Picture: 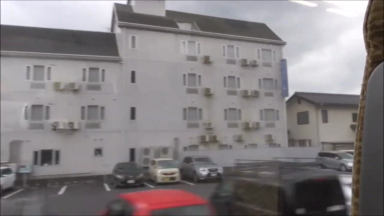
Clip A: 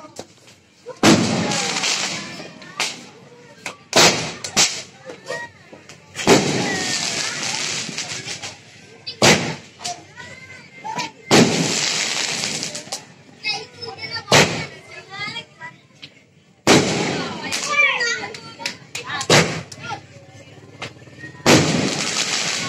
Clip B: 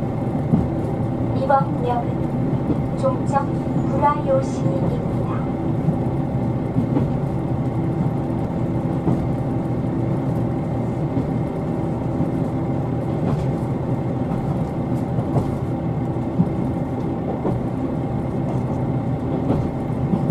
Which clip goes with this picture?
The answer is B